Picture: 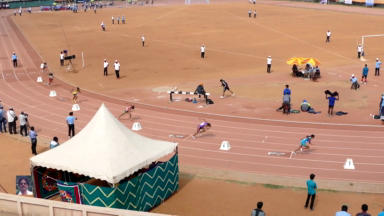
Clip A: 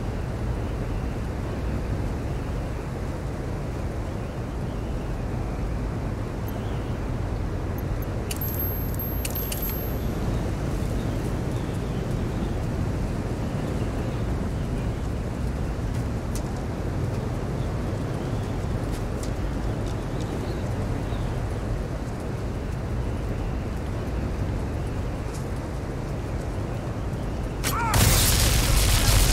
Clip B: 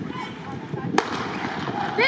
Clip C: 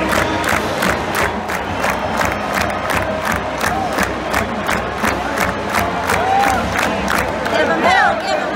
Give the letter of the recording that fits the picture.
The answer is B